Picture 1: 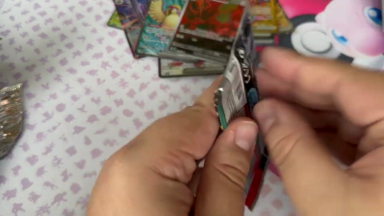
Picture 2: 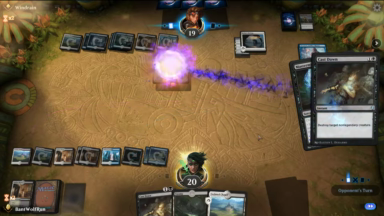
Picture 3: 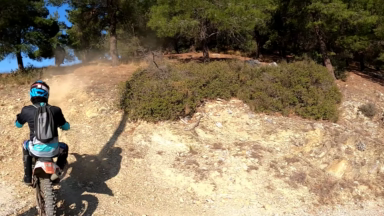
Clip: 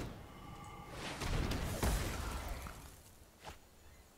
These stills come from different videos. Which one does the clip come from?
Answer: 2